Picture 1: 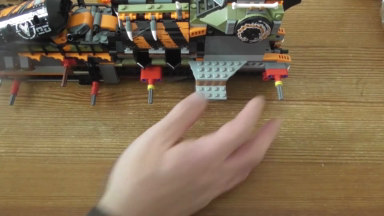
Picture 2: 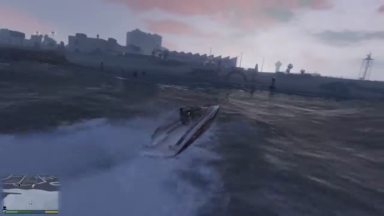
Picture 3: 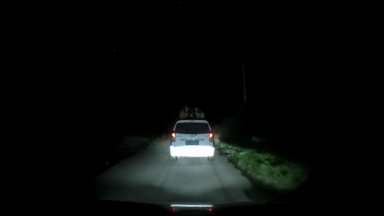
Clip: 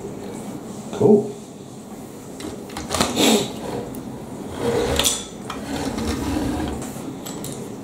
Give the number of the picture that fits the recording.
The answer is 1